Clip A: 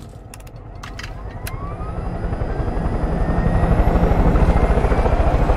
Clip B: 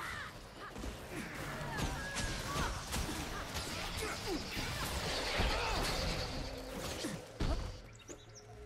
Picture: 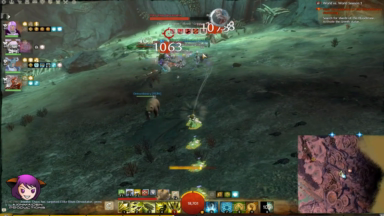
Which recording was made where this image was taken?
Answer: B